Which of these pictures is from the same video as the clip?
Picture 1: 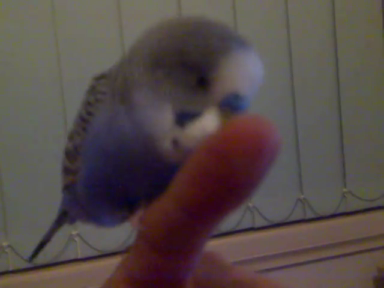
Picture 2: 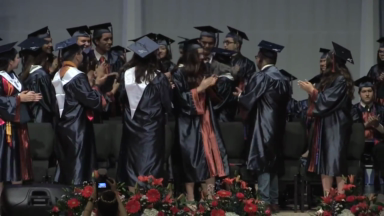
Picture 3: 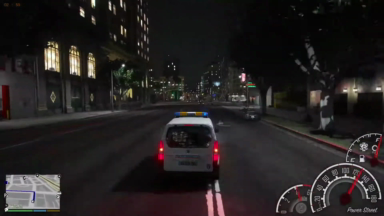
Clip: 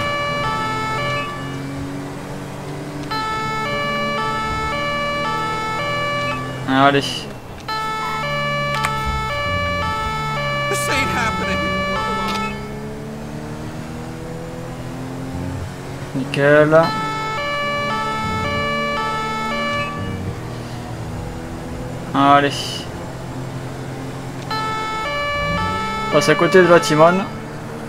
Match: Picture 3